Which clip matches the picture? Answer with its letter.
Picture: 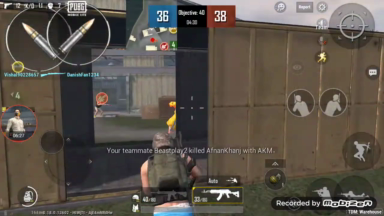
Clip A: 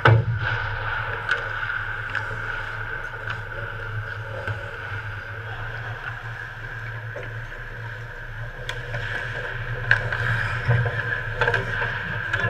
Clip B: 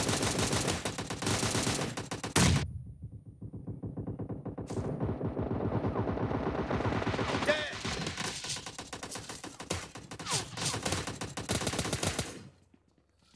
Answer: B